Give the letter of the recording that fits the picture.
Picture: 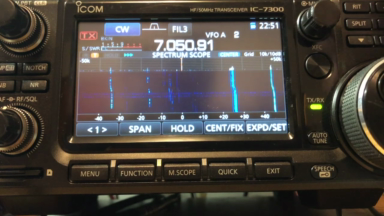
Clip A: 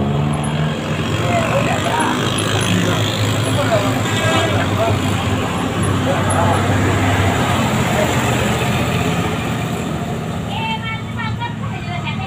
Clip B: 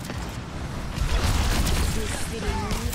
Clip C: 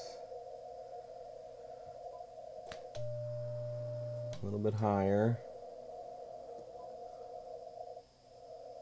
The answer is C